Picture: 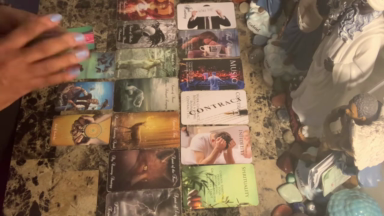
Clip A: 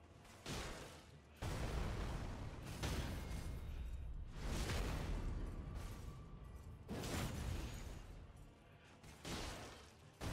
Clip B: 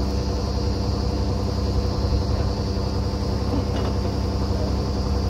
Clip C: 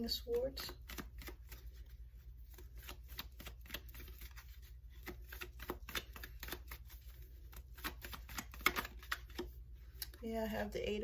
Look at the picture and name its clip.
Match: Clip C